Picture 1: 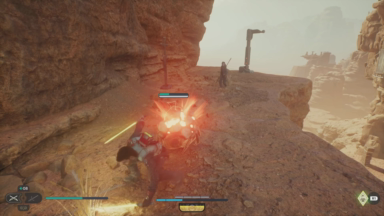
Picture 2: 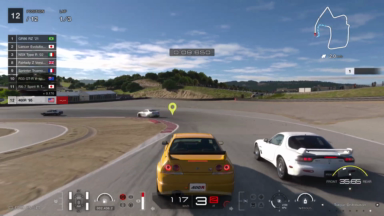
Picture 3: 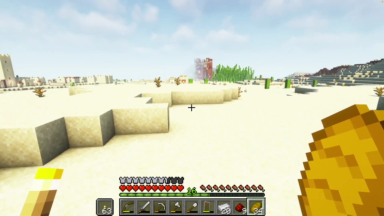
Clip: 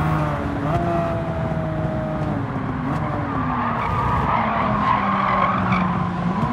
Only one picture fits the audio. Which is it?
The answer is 2